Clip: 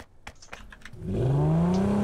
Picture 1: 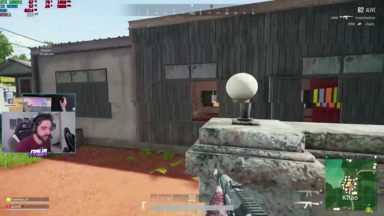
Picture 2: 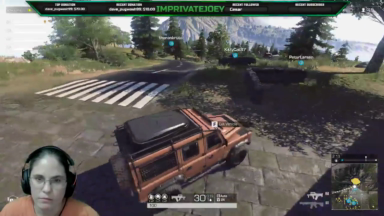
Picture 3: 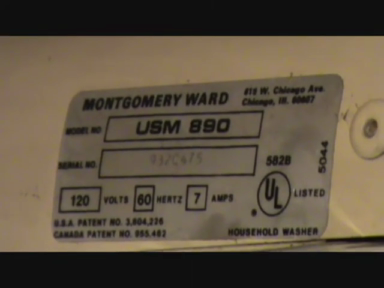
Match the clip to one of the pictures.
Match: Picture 2